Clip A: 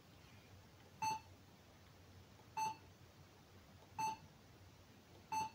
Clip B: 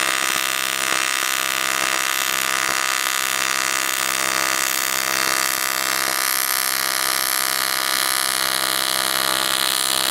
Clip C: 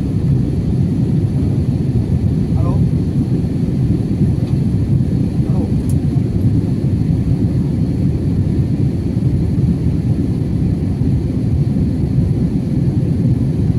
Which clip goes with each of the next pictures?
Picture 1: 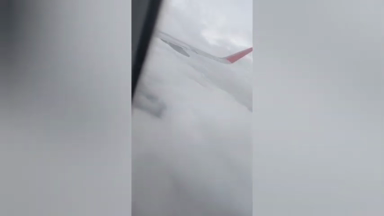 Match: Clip C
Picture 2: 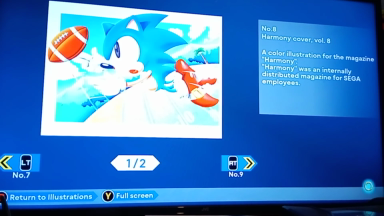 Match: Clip A